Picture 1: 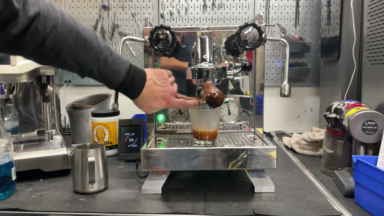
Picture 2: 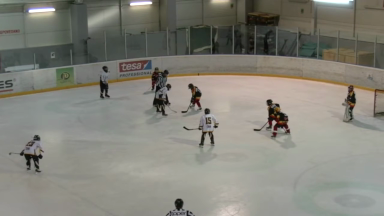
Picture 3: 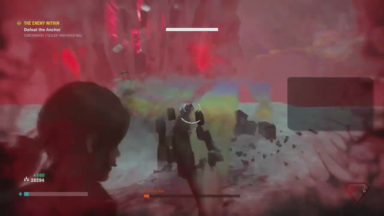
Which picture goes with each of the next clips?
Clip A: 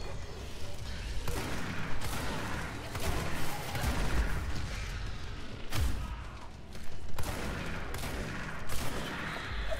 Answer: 3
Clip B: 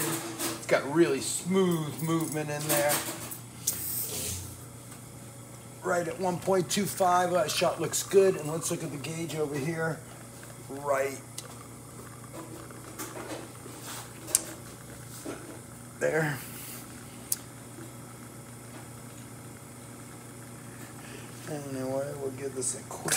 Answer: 1